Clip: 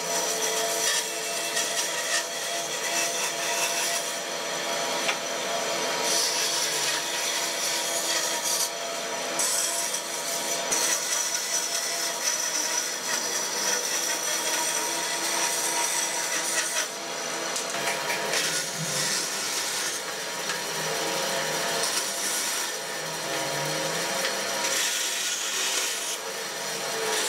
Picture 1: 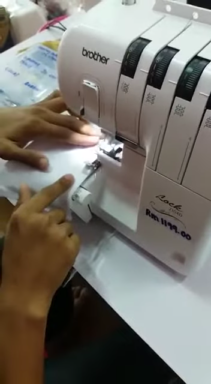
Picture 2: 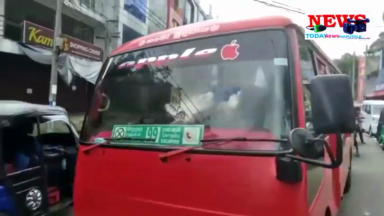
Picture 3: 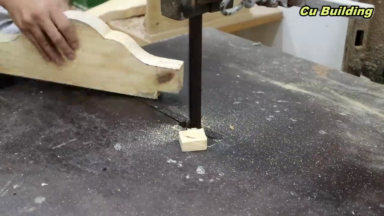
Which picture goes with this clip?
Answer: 3